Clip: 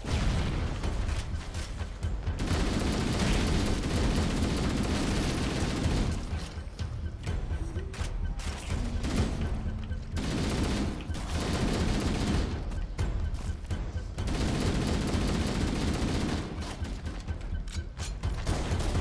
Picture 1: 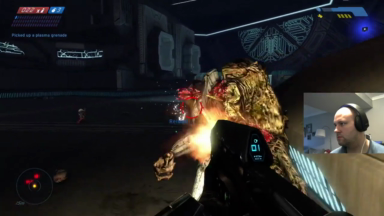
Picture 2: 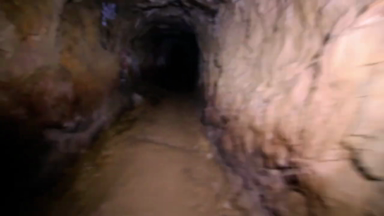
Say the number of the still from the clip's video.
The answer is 1